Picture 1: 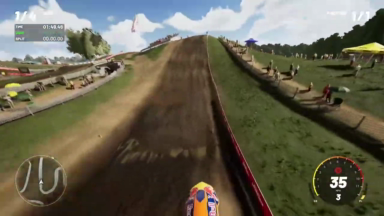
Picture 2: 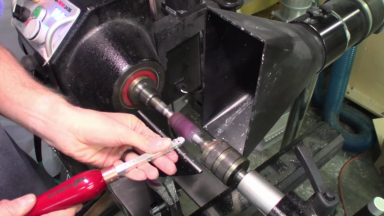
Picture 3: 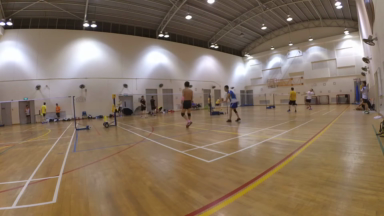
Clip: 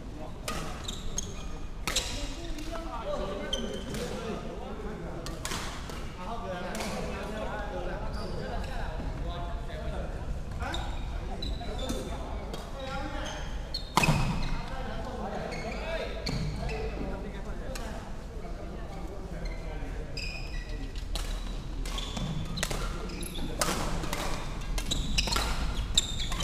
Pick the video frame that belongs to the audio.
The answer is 3